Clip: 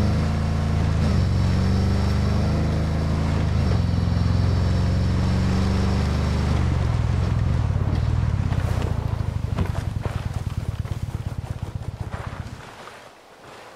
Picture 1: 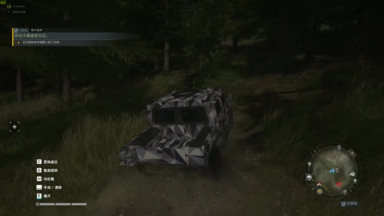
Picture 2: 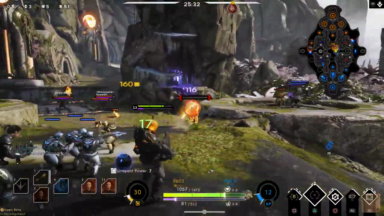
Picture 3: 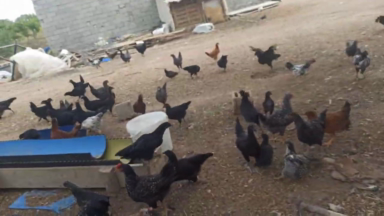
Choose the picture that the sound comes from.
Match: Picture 1